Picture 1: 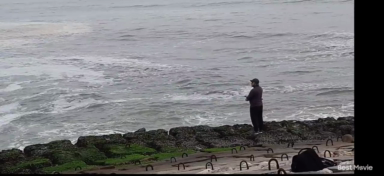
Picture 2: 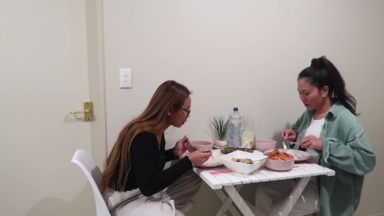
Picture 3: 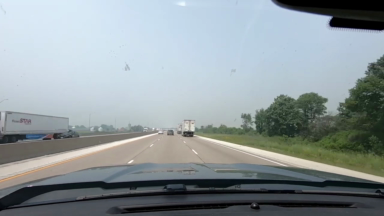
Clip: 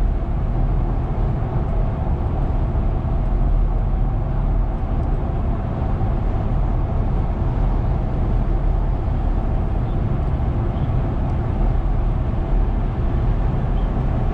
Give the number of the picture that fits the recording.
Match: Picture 3